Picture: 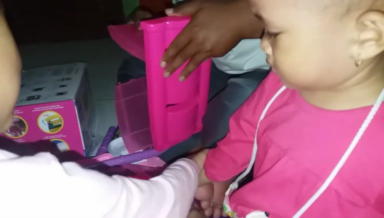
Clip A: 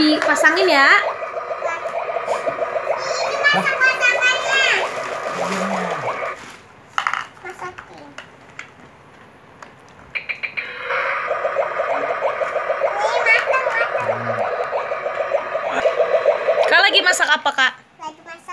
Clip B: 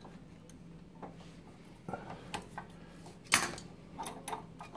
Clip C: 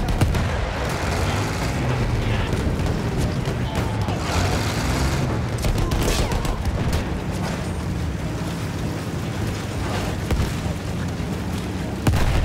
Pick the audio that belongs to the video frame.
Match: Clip A